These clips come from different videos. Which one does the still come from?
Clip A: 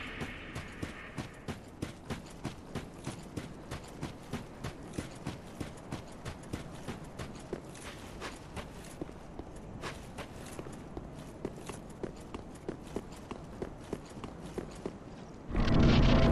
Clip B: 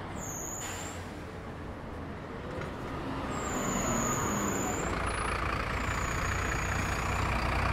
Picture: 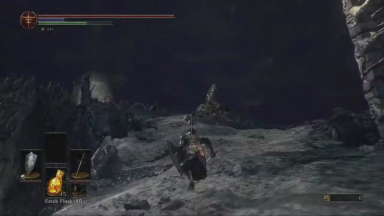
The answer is A